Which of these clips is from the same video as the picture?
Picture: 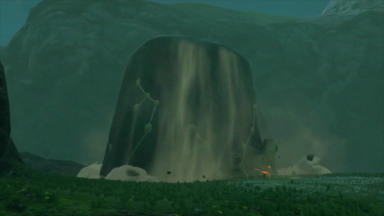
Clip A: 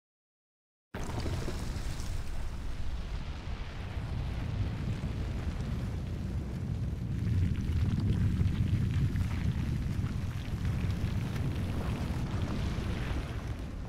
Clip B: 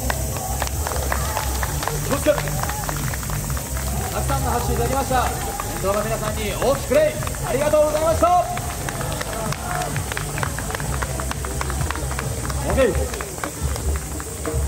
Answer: A